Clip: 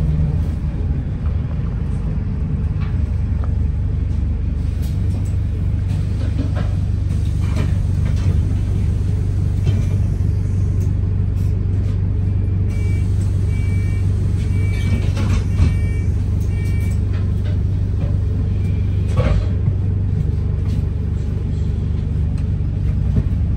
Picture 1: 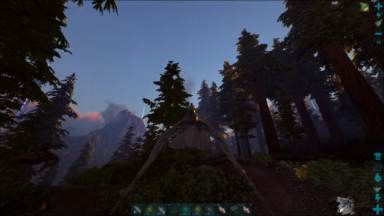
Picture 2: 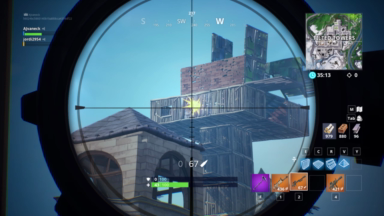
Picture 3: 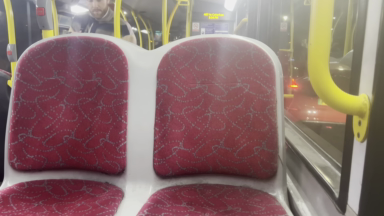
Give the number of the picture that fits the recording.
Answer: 3